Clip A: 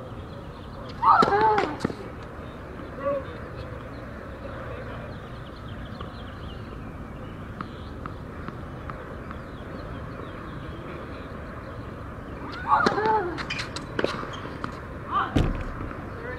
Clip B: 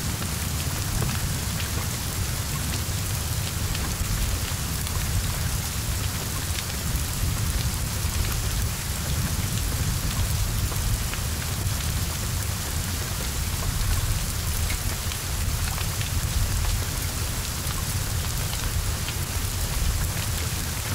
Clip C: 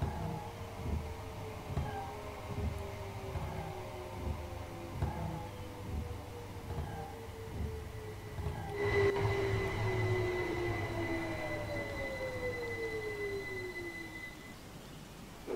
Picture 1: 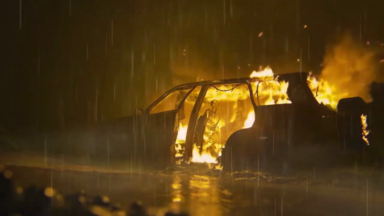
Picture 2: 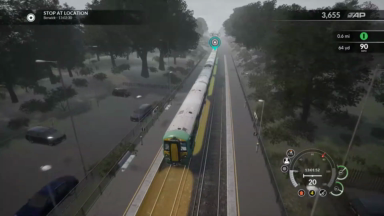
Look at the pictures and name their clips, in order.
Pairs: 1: B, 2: C